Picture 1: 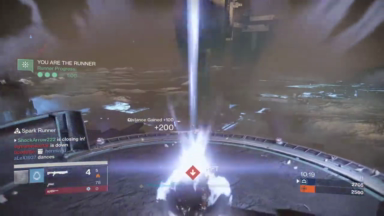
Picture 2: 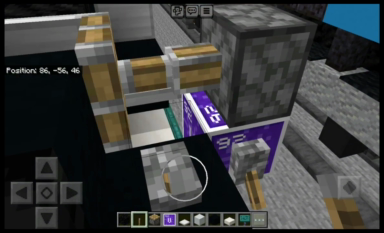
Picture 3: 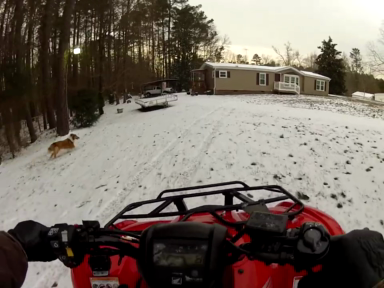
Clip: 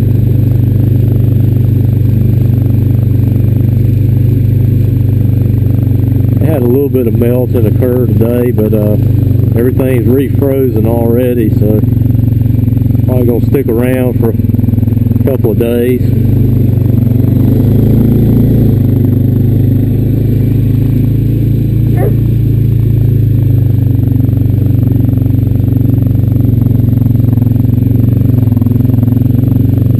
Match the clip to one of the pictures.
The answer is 3